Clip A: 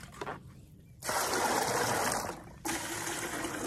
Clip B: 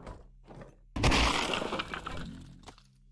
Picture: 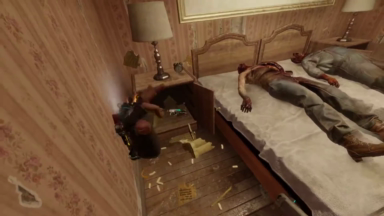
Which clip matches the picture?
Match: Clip B